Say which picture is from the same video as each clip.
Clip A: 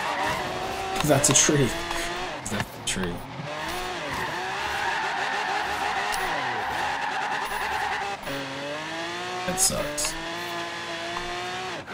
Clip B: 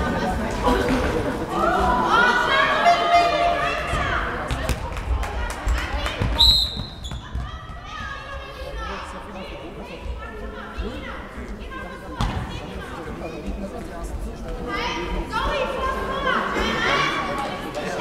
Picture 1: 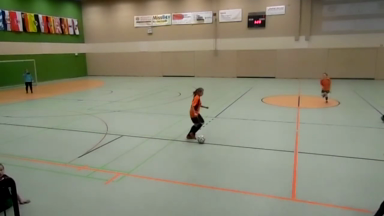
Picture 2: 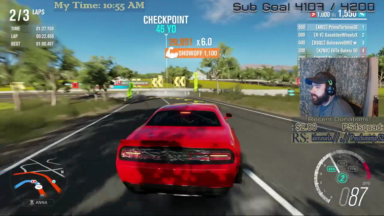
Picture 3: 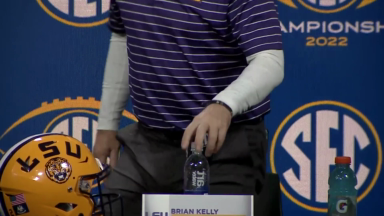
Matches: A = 2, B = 1